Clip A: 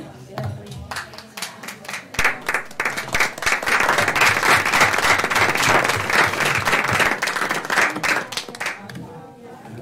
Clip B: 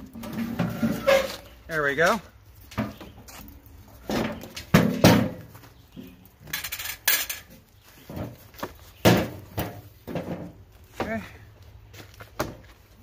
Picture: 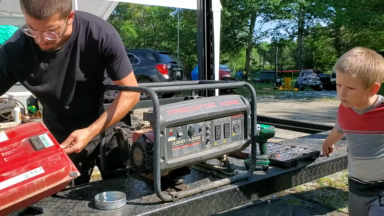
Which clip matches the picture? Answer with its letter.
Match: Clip B